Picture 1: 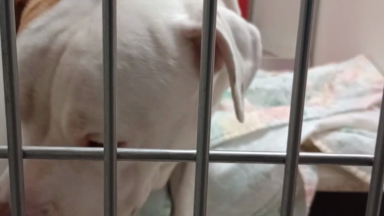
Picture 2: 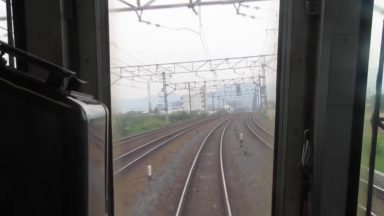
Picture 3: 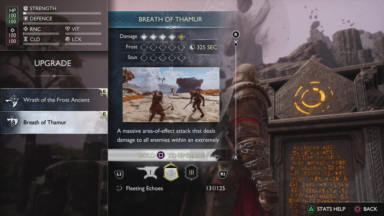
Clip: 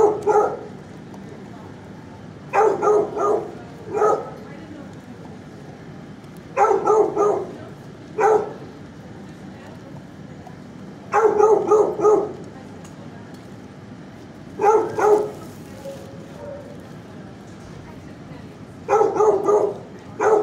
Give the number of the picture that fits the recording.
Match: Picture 1